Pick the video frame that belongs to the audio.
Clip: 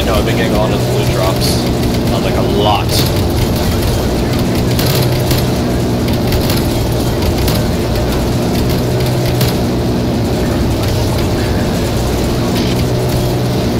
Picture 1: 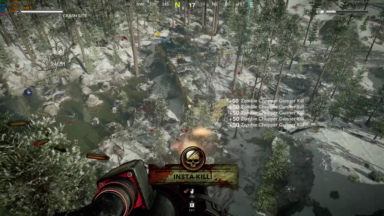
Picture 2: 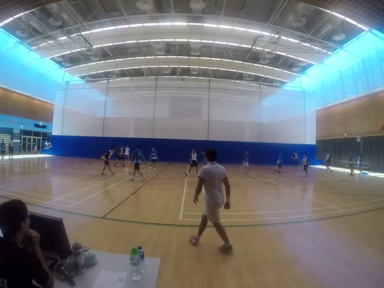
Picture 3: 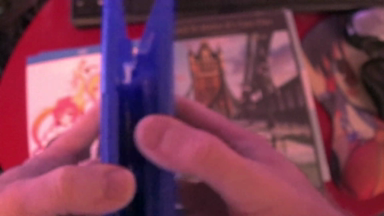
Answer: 1